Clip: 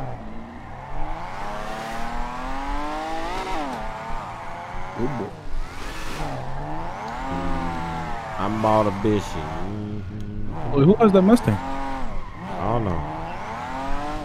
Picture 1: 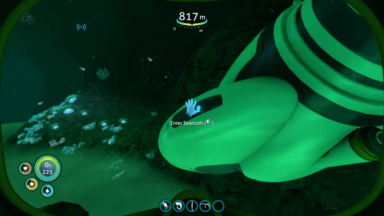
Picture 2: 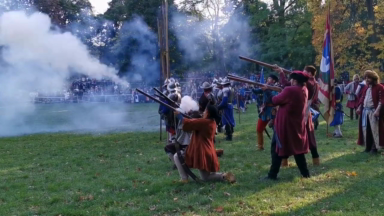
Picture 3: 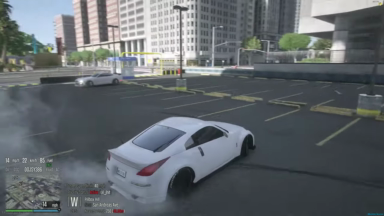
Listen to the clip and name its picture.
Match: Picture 3